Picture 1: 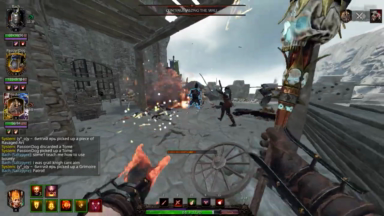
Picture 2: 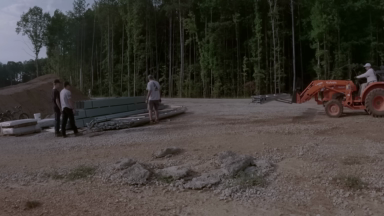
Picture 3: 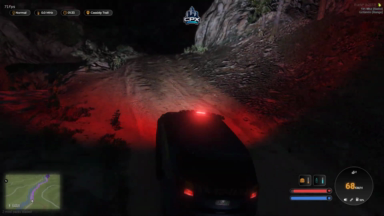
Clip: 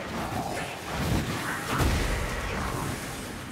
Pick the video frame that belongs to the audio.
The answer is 1